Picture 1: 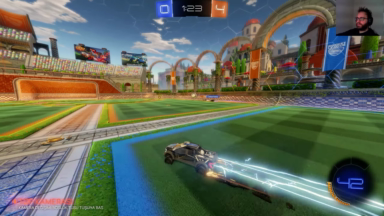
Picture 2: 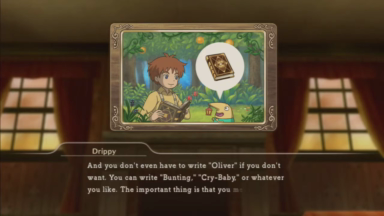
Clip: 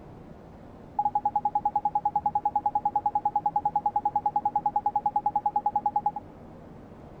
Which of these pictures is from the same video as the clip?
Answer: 2